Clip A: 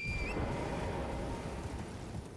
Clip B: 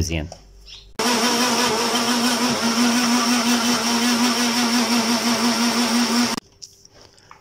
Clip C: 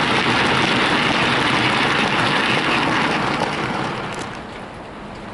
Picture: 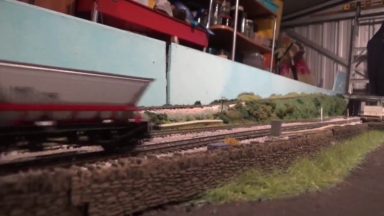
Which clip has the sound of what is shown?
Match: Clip C